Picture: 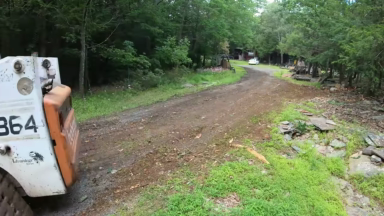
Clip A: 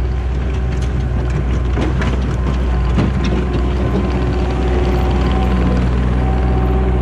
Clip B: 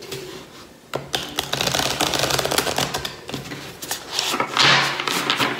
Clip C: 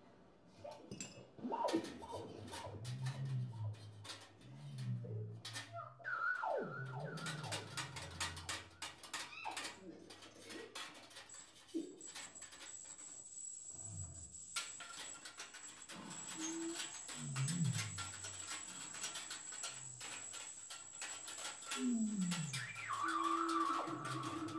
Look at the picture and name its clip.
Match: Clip A